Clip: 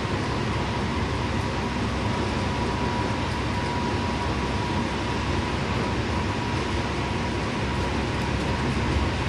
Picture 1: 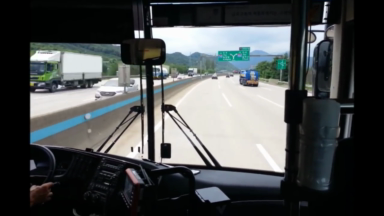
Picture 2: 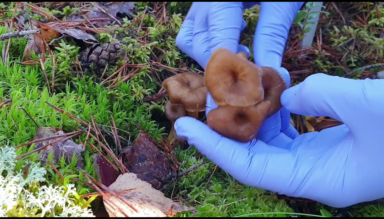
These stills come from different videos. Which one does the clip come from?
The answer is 1